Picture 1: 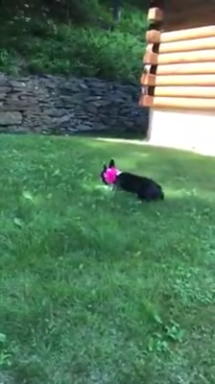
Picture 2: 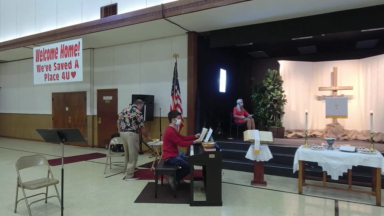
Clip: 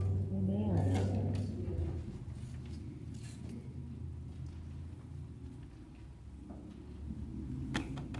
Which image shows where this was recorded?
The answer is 2